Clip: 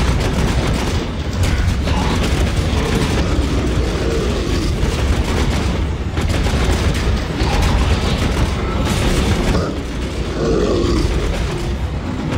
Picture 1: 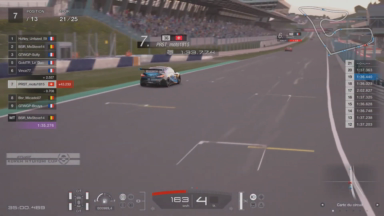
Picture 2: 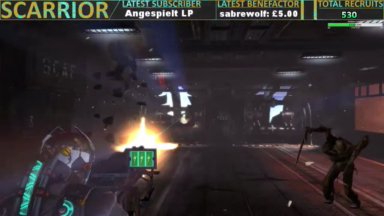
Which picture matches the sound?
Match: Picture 2